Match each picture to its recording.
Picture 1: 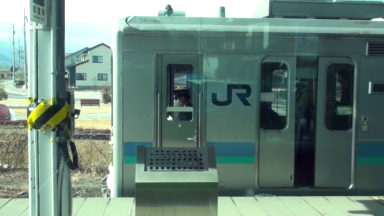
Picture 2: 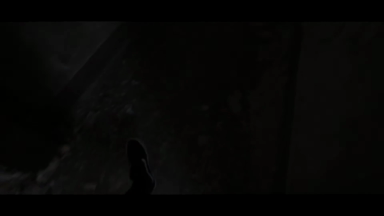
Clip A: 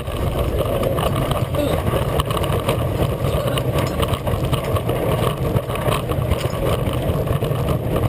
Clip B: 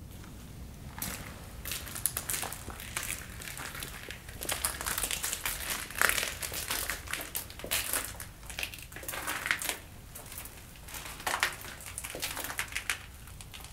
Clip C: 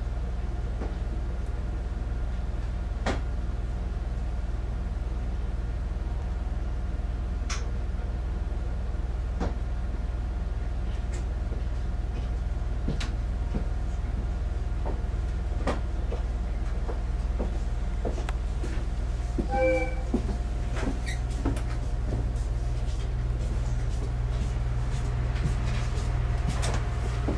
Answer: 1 C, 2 B